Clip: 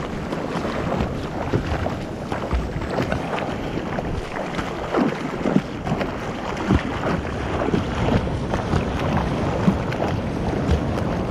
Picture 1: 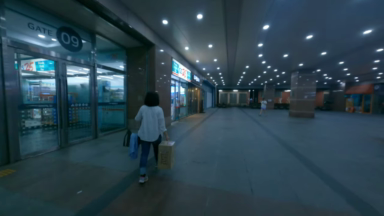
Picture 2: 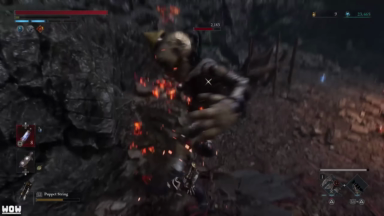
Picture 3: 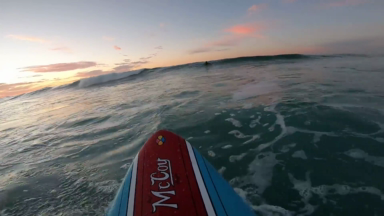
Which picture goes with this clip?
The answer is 3